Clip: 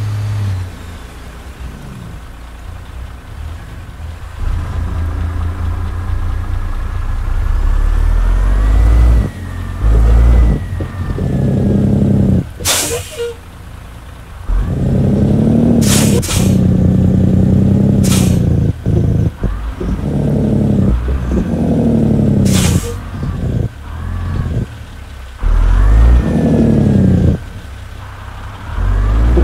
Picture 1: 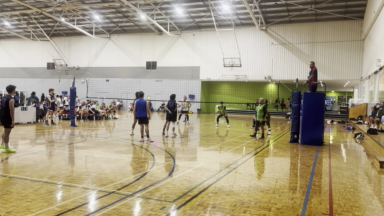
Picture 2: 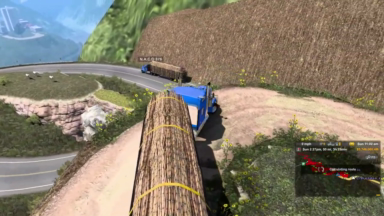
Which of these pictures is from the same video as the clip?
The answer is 2